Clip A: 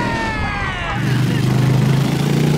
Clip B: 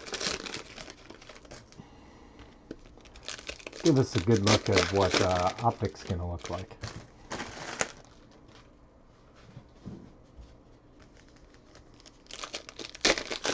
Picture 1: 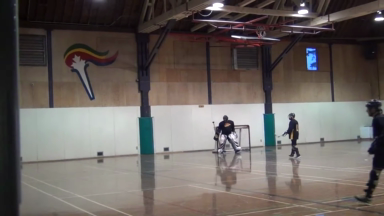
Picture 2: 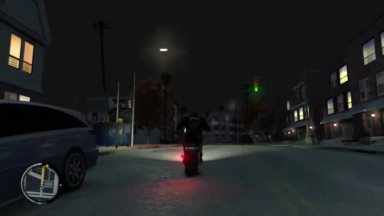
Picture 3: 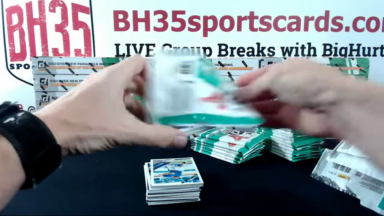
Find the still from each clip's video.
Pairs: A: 2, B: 3